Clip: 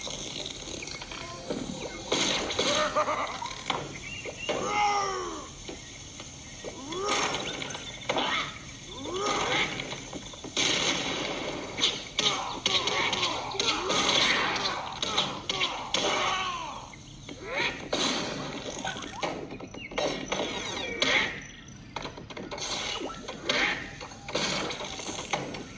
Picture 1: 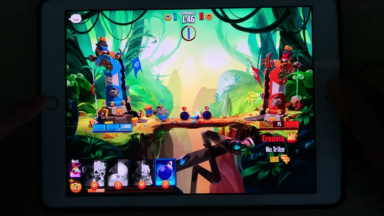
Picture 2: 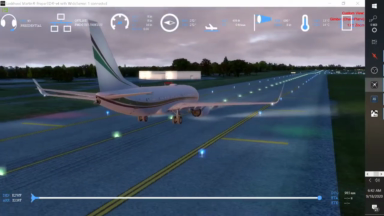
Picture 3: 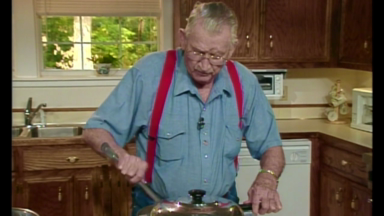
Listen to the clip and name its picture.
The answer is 1